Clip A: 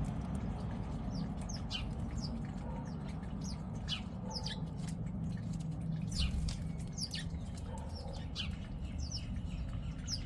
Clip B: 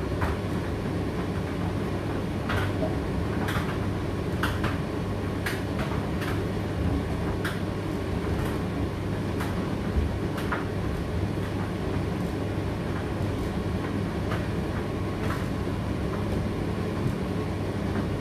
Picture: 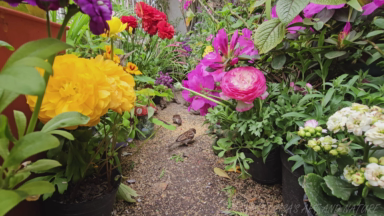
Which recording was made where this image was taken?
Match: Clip A